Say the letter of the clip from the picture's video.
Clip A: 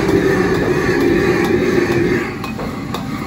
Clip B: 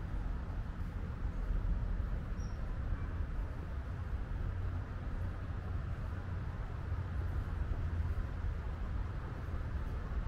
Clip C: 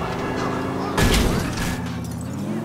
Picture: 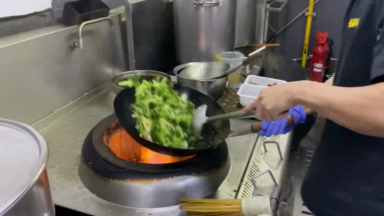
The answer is A